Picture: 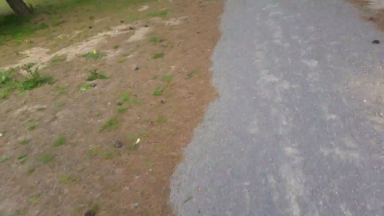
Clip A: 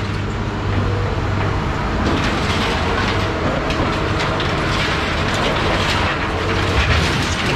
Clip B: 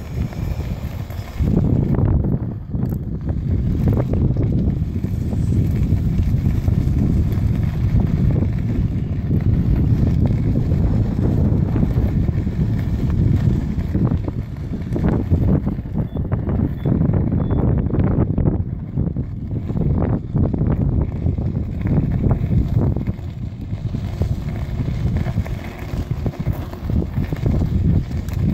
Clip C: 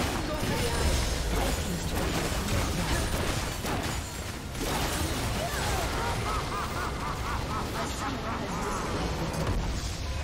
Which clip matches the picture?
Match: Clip B